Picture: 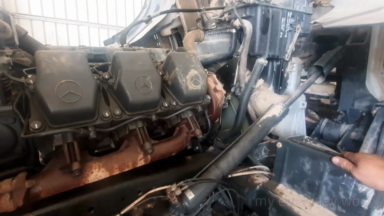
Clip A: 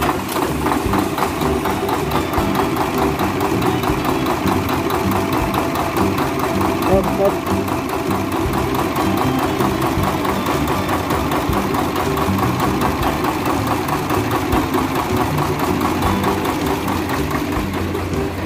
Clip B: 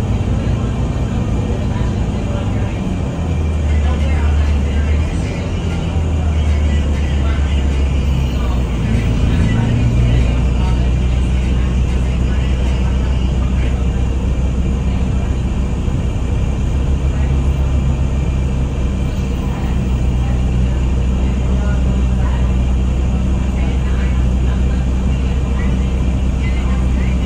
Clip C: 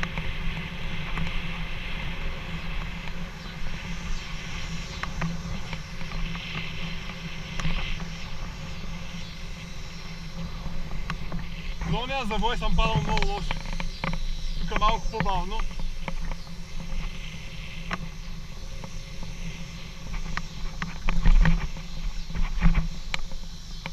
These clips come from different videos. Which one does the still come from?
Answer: A